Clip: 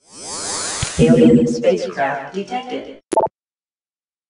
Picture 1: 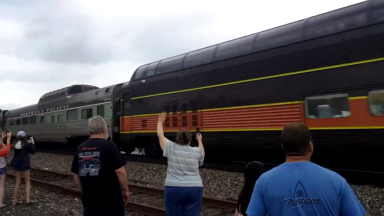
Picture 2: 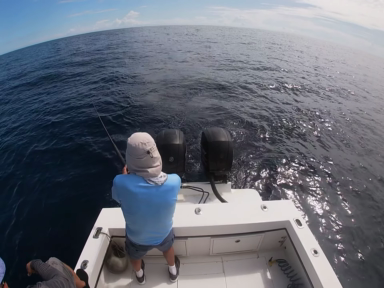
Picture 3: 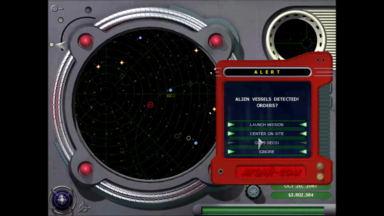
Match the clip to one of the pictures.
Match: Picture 3